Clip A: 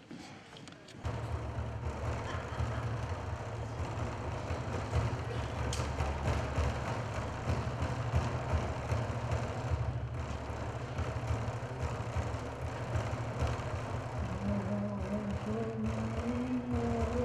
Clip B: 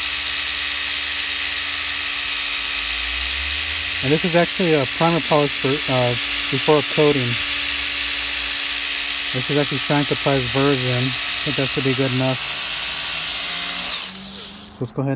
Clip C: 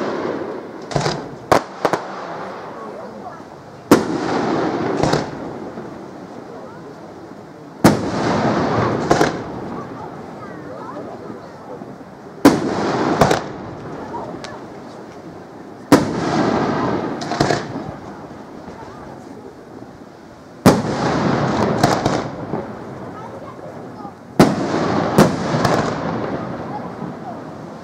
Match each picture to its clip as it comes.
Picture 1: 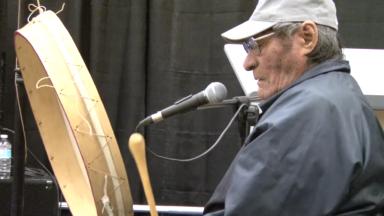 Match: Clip A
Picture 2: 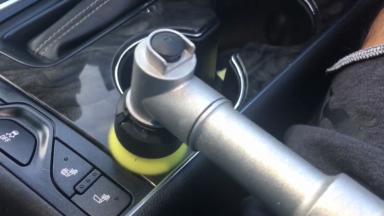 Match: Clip B